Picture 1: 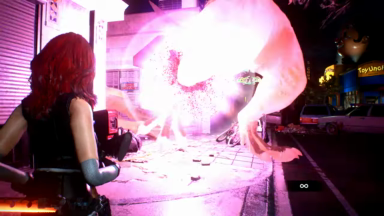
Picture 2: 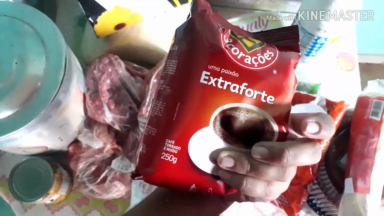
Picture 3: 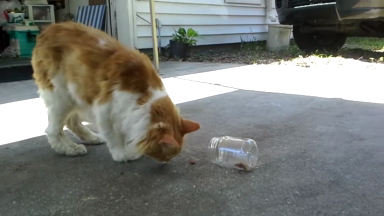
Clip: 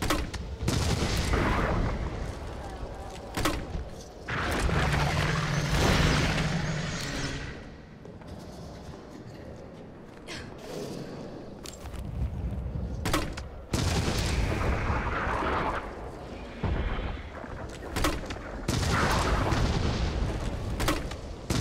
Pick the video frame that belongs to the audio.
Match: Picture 1